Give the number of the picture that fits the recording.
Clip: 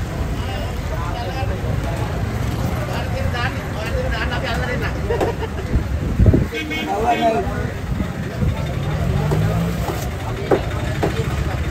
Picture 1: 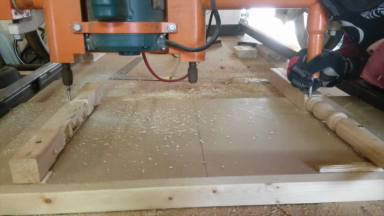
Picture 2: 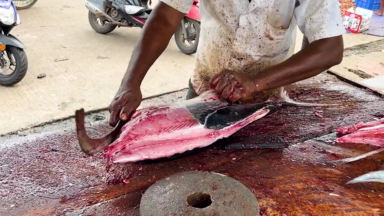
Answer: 2